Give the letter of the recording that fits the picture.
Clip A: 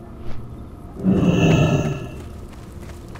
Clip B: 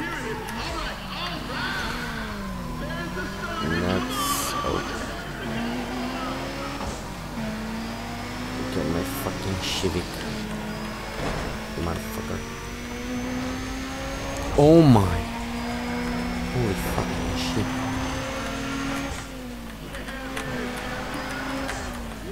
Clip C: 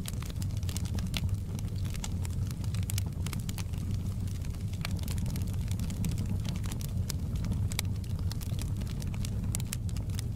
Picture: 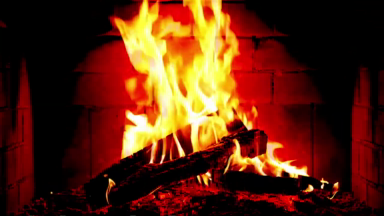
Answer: C